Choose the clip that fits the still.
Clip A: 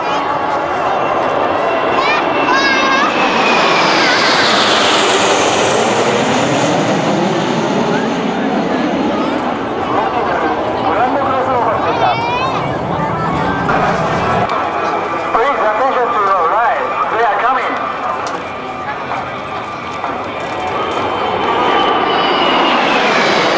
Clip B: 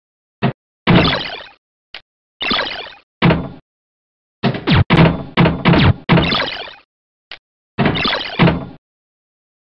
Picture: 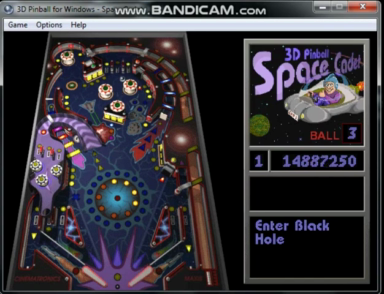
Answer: B